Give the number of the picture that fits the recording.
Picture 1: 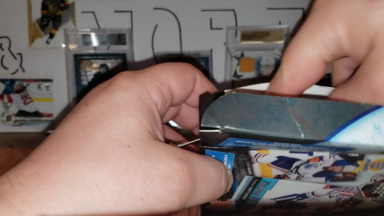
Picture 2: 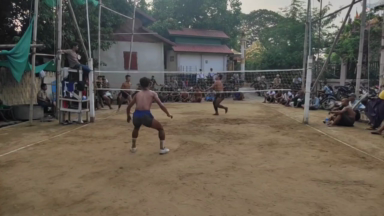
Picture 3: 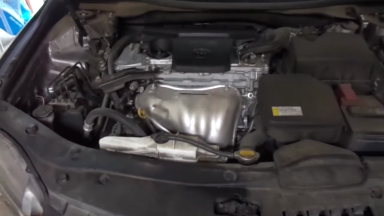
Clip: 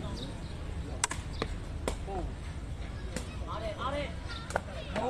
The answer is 2